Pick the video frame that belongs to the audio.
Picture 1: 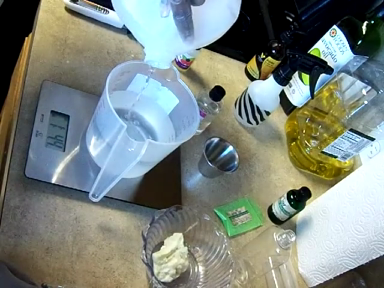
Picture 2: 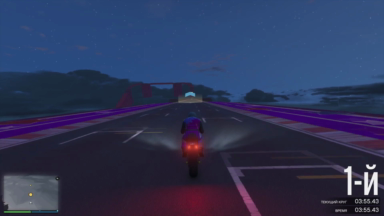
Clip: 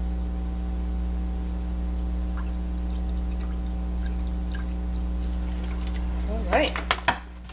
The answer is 1